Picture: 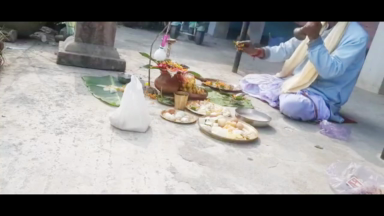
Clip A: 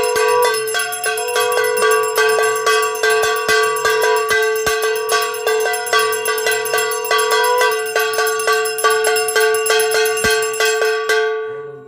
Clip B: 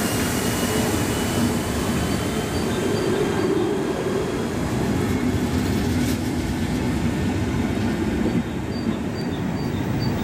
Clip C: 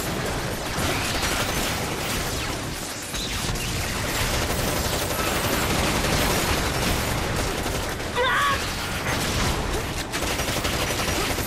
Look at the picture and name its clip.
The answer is A